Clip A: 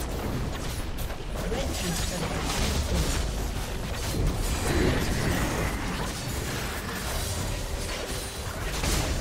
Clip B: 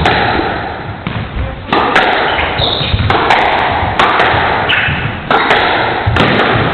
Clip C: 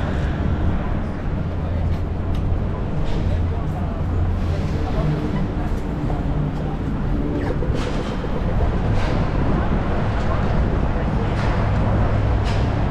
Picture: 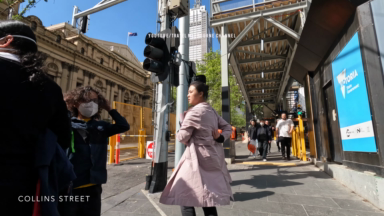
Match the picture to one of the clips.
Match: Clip C